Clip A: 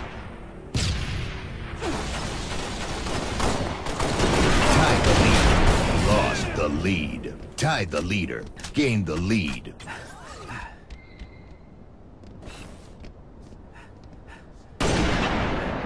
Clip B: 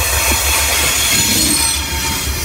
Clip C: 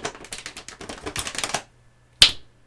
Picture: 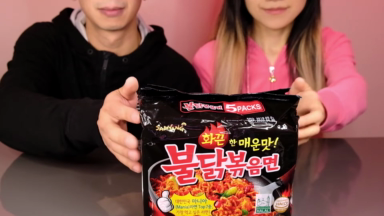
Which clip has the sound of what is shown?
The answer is C